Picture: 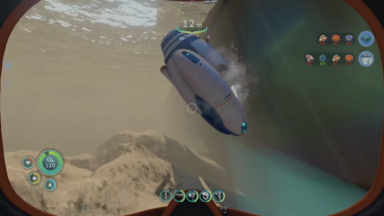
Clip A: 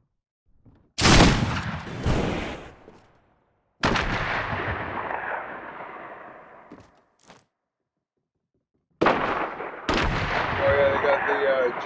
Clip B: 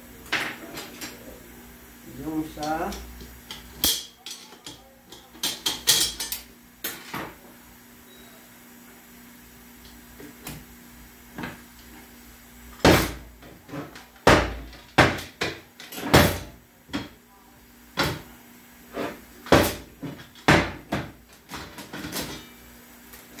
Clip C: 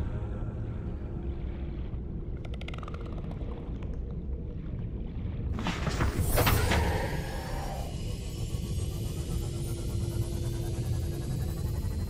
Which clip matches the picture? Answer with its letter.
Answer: C